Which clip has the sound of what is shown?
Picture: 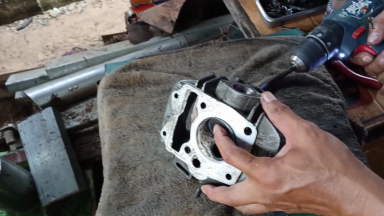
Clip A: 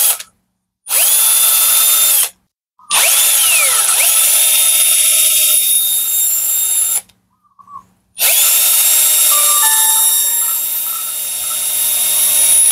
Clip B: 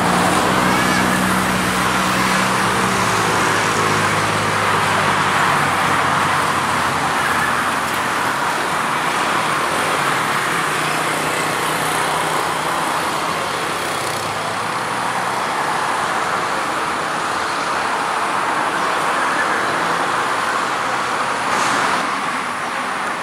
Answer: A